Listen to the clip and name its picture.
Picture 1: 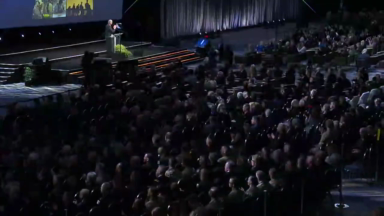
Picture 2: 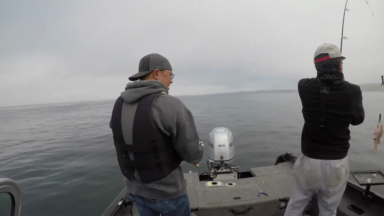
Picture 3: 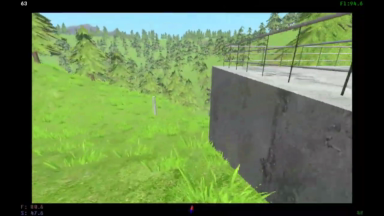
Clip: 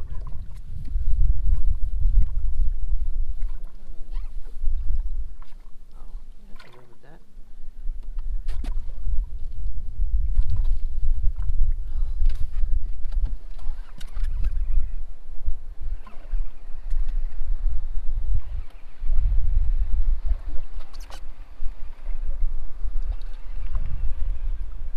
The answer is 2